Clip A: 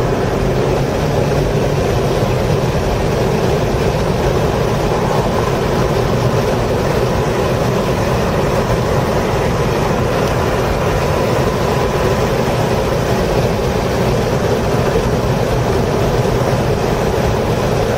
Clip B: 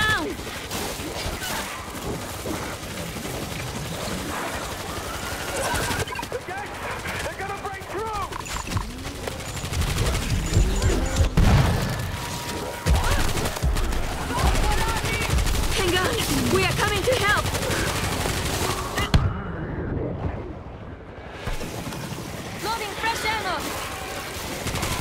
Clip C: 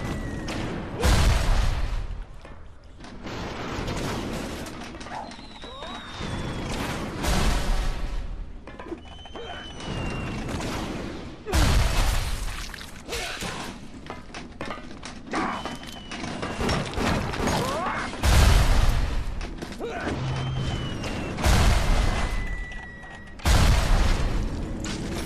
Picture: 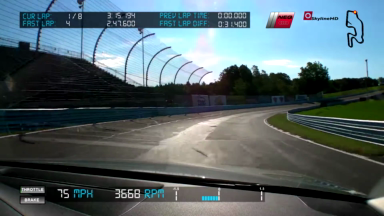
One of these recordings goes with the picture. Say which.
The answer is A